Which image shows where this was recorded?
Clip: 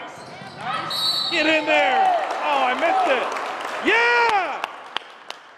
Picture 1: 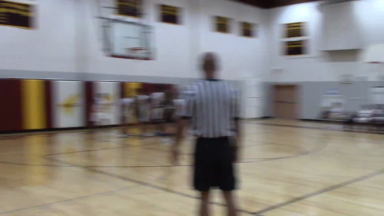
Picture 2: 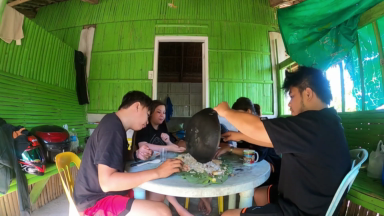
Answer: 1